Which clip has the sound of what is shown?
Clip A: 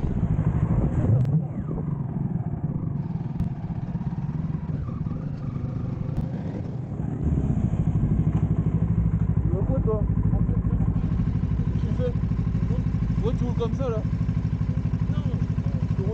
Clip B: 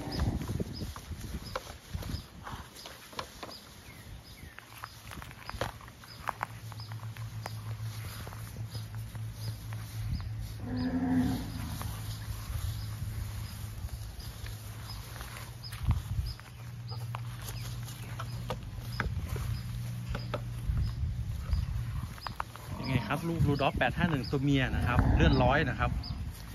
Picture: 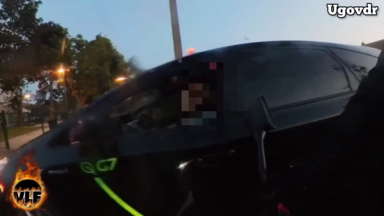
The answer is A